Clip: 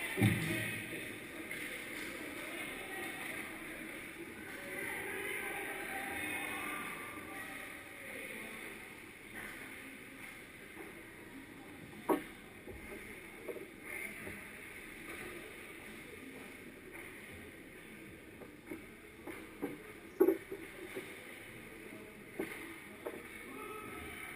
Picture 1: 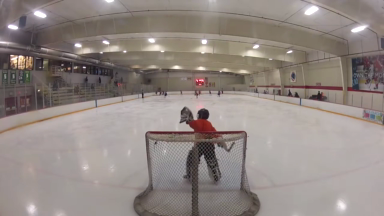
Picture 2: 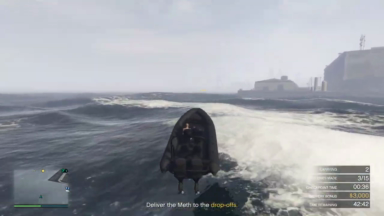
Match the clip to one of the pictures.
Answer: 1